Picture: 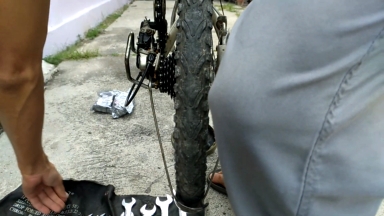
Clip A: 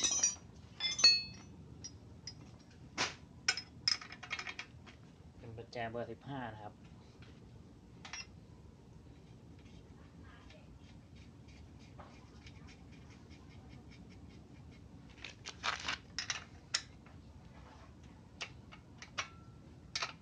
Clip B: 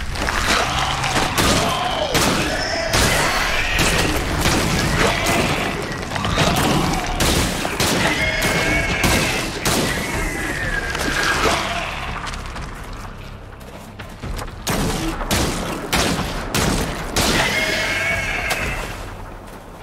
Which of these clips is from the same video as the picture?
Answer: A